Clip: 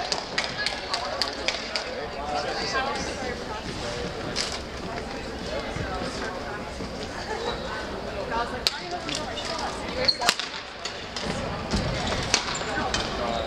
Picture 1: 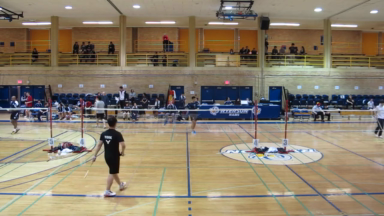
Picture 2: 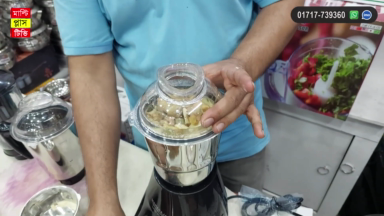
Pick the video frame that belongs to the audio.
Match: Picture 1